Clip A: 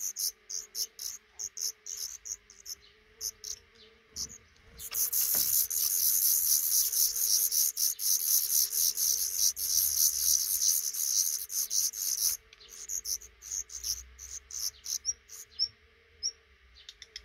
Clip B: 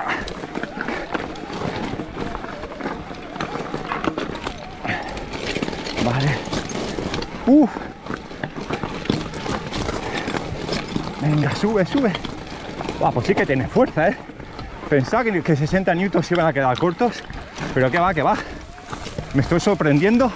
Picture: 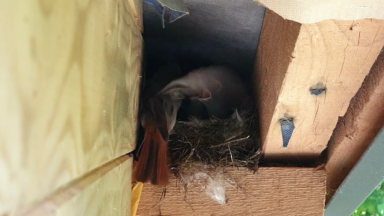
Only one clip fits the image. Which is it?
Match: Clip A